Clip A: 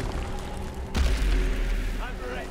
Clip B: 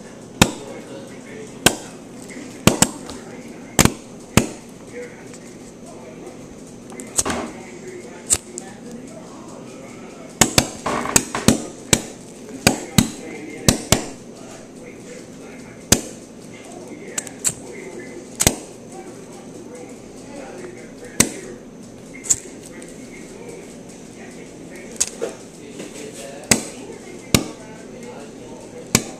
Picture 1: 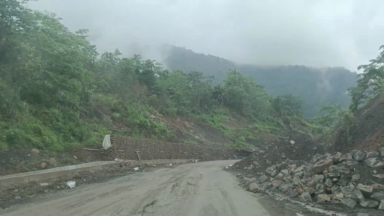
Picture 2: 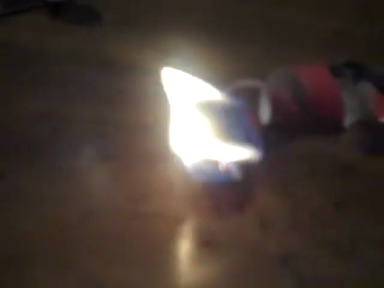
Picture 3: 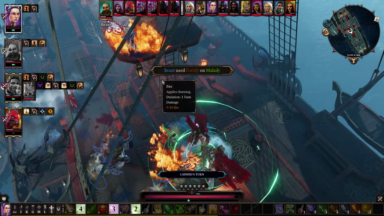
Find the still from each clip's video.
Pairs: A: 3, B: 2